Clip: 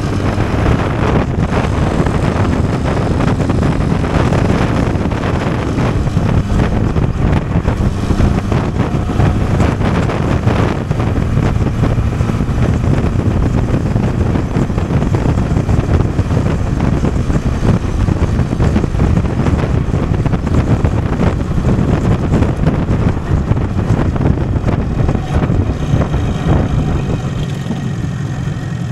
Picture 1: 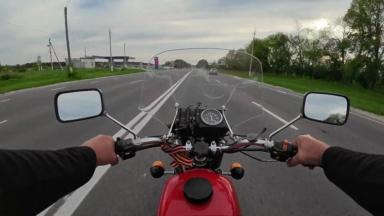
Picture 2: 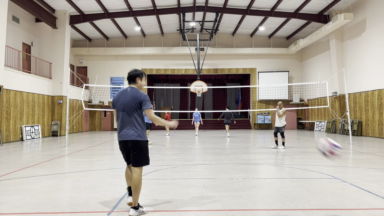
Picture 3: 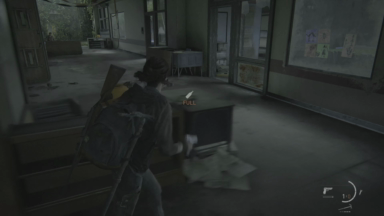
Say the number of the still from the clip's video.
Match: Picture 1